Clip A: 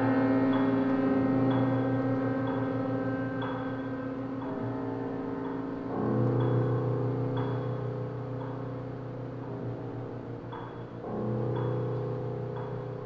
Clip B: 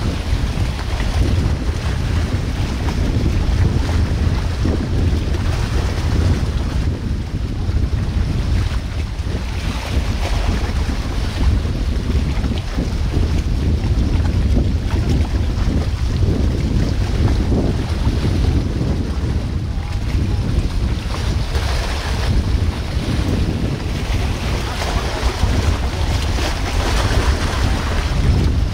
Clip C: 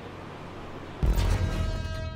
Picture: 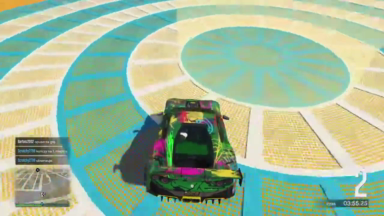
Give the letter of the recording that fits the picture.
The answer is C